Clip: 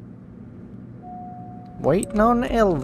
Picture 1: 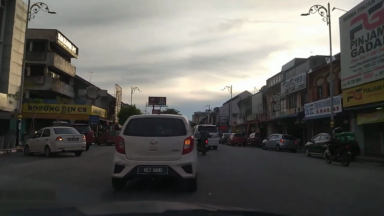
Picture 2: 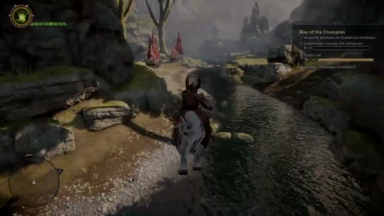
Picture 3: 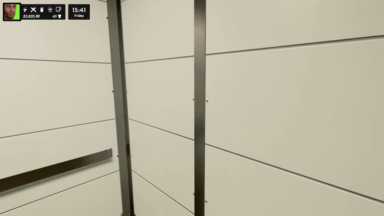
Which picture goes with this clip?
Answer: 3